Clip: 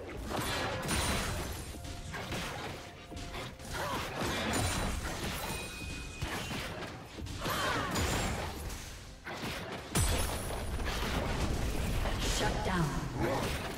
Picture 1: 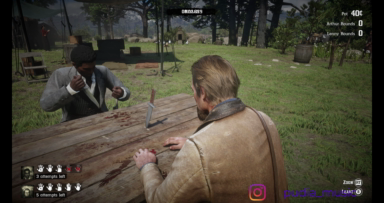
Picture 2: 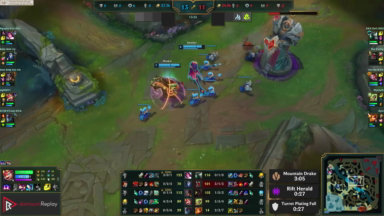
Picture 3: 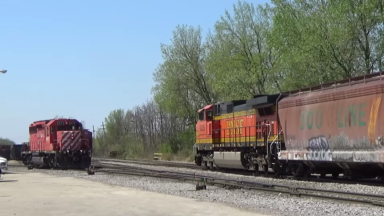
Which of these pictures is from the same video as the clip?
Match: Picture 2